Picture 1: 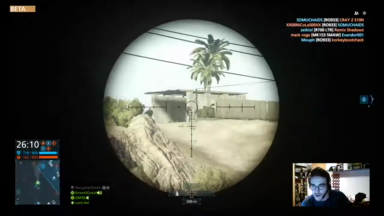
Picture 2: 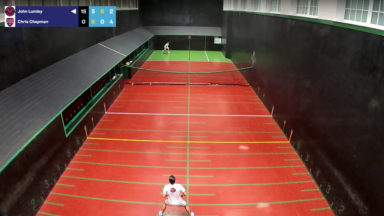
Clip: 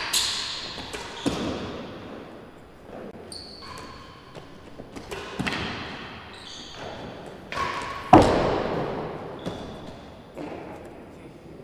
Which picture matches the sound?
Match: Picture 2